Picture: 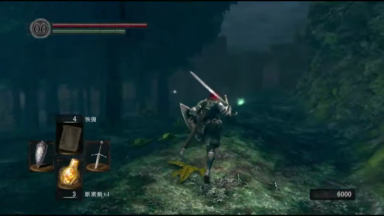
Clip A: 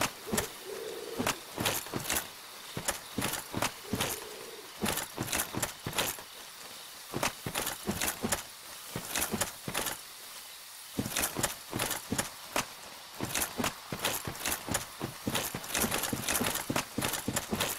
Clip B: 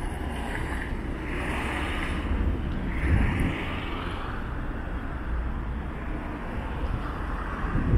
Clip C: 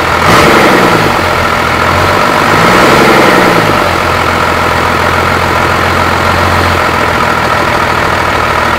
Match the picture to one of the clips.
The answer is A